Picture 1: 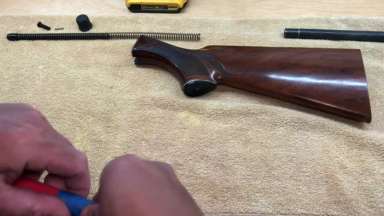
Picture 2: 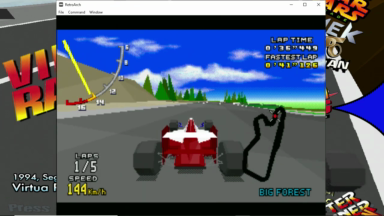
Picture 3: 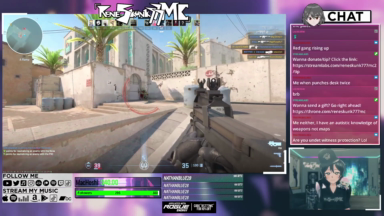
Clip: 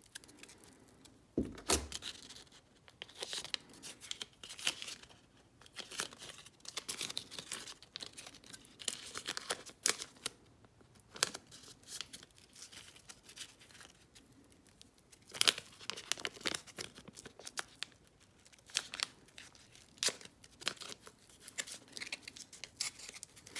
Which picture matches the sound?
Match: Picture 1